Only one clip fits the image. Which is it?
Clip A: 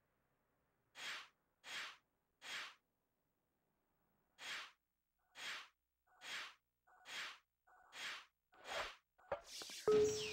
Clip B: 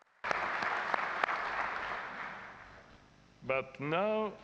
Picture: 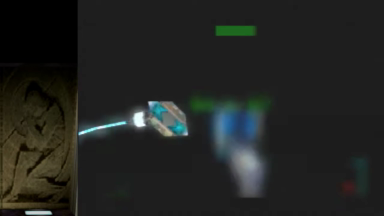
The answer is A